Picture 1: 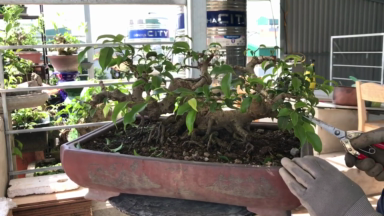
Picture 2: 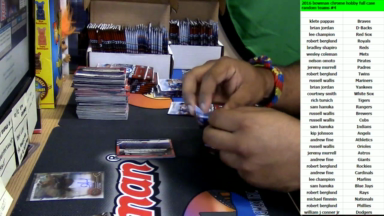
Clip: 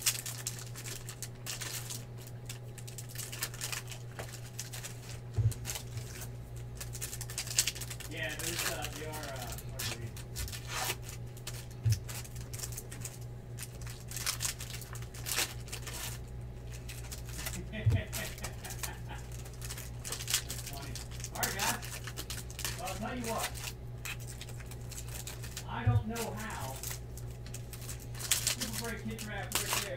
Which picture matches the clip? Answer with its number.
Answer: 2